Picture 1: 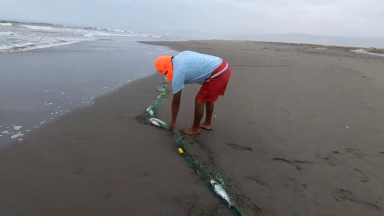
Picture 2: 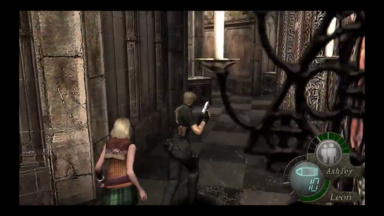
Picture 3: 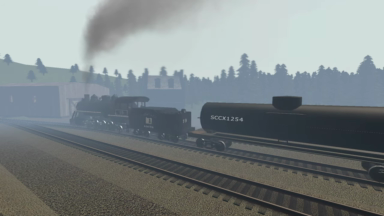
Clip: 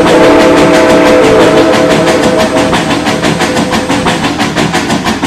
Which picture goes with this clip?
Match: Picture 3